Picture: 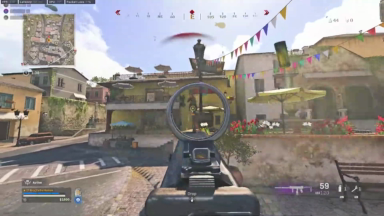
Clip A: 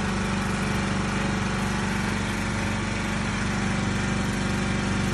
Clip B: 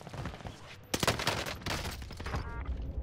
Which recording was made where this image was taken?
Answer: B